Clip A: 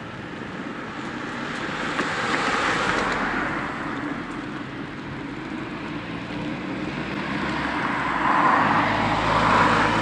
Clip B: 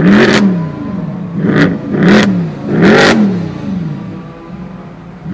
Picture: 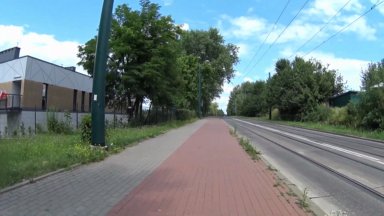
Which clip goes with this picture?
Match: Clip A